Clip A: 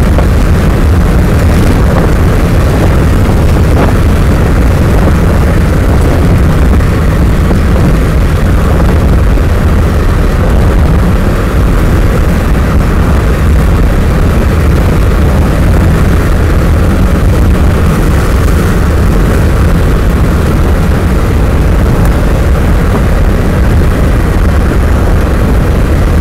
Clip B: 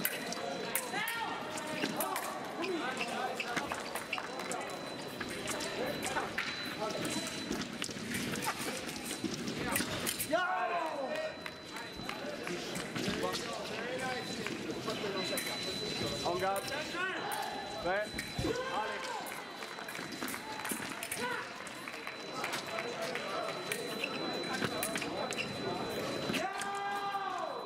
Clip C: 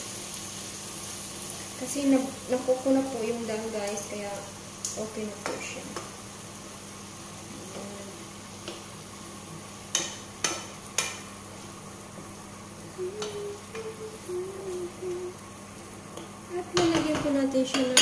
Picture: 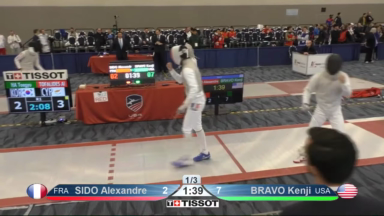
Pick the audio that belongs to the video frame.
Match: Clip B